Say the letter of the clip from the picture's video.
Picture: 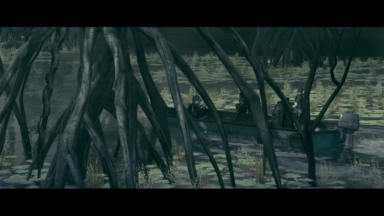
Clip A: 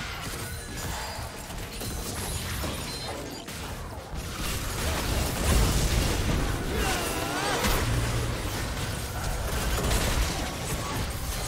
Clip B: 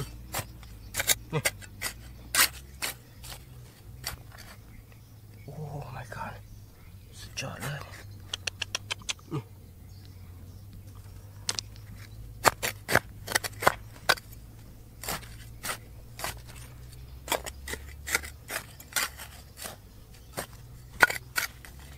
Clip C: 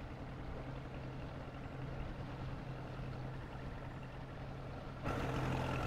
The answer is C